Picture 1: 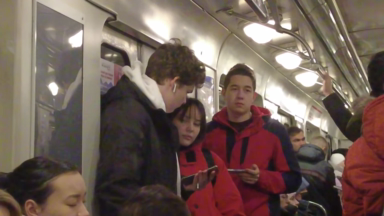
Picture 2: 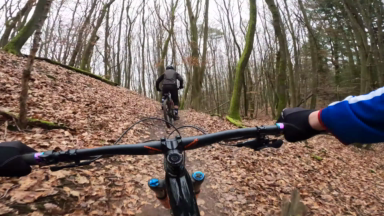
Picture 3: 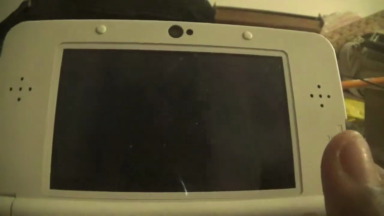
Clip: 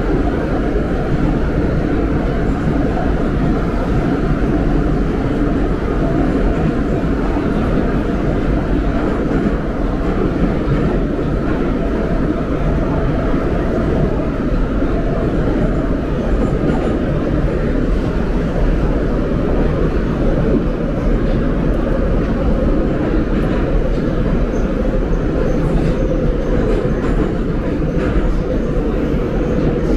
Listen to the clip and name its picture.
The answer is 1